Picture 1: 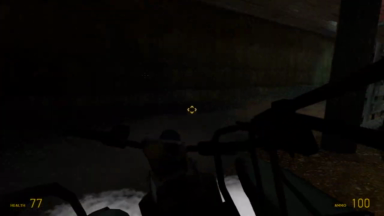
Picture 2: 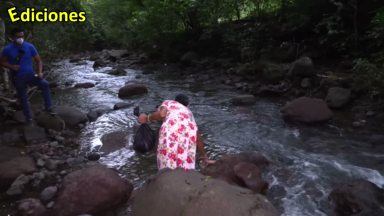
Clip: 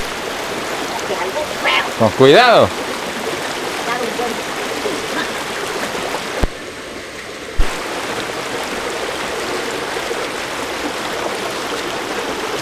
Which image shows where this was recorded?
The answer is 2